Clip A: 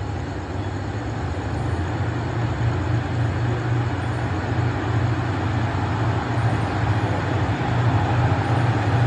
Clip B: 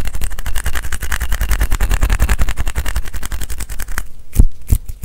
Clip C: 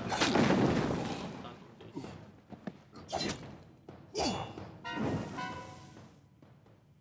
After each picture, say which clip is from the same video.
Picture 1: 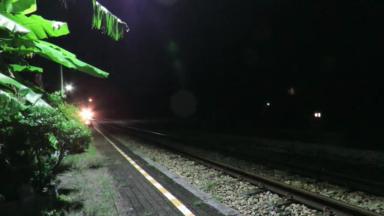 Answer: A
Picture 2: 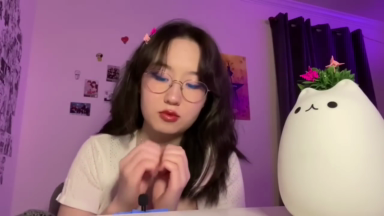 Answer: B